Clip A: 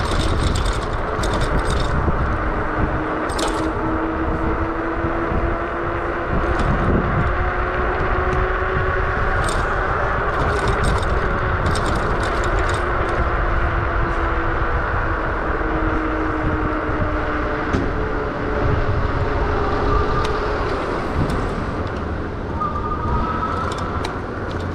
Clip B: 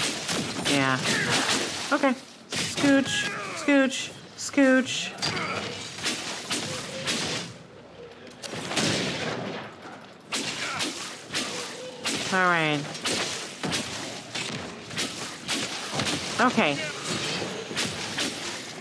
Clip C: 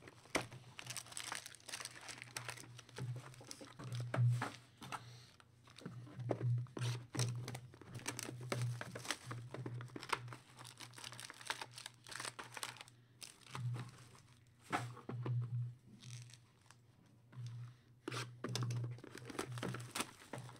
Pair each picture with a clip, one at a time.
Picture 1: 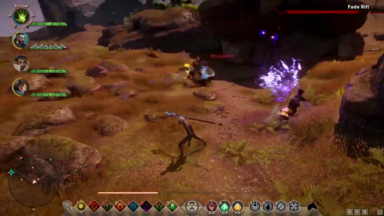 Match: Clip B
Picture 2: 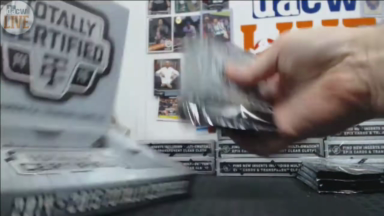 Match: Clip C